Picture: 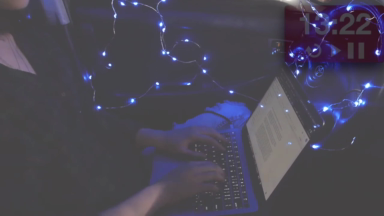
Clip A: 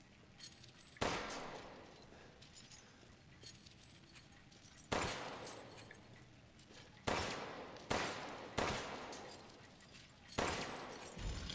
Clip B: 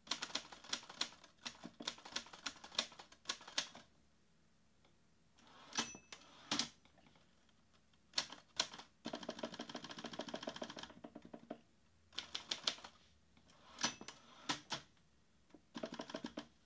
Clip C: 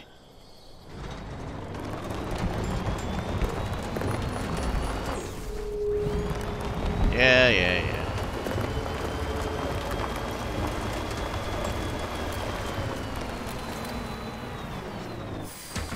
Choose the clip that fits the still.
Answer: B